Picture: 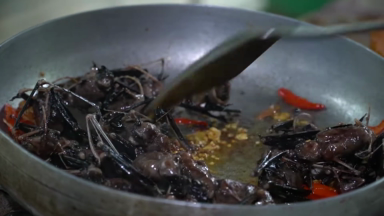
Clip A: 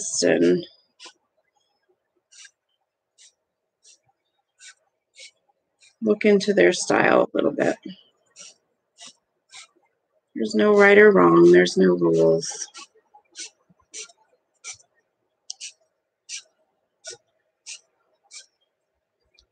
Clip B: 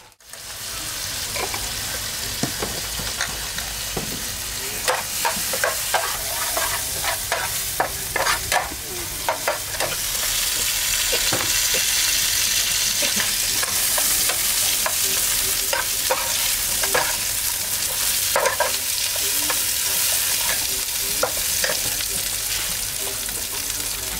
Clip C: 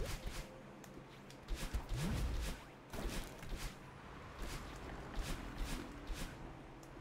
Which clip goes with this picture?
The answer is B